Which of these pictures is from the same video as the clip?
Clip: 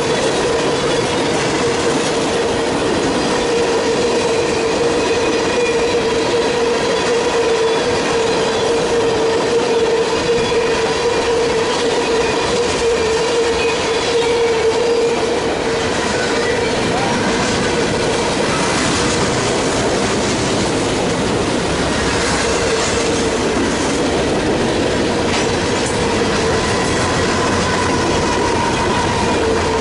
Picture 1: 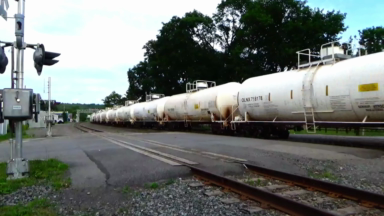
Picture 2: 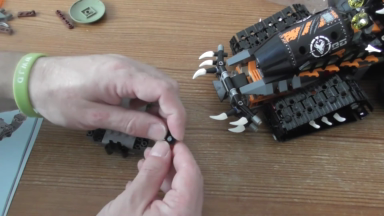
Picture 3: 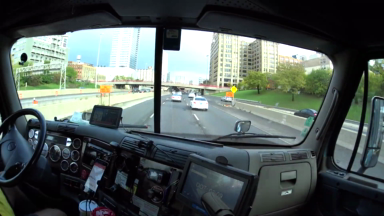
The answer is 1